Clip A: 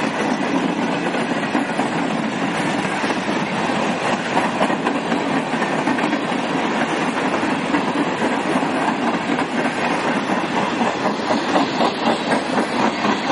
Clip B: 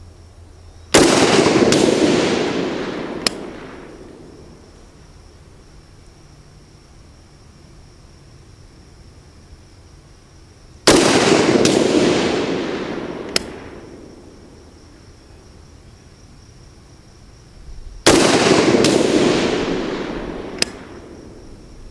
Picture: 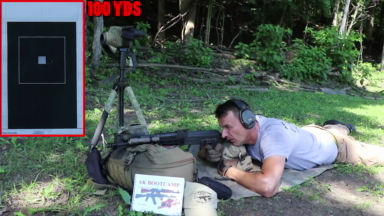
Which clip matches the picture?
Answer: B